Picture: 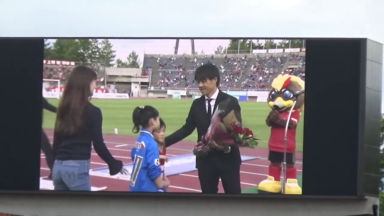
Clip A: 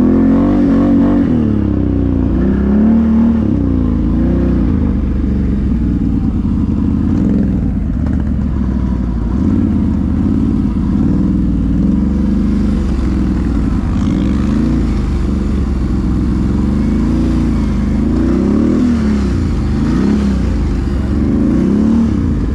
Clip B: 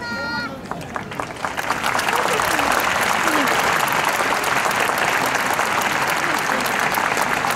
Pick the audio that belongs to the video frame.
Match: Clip B